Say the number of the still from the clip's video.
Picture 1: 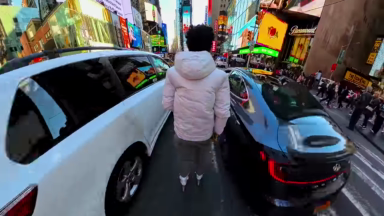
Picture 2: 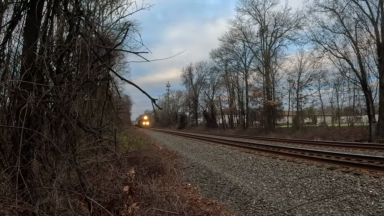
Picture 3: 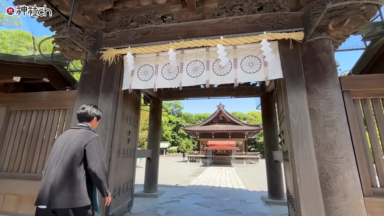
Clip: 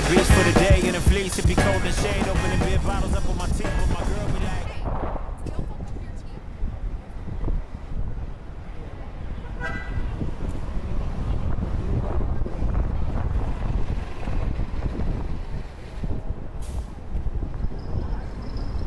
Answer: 1